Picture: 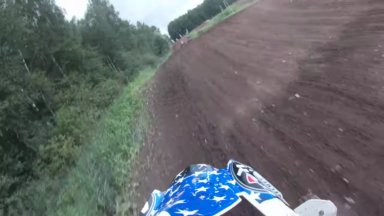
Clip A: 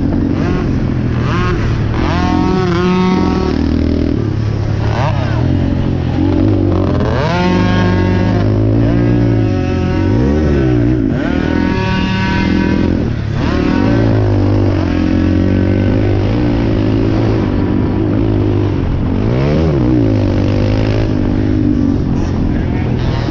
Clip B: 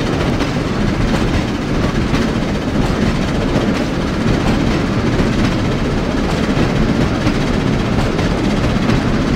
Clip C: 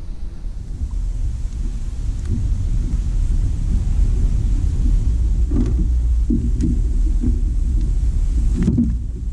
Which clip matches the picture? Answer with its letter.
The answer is A